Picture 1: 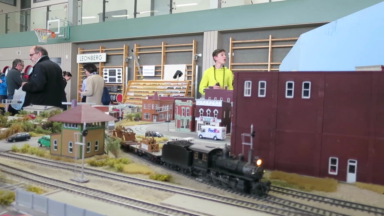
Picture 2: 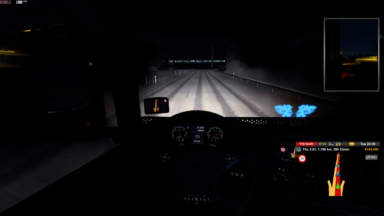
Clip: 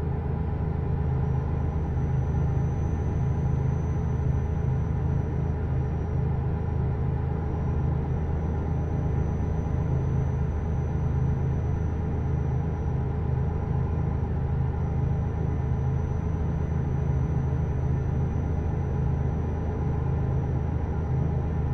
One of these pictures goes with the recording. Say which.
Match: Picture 2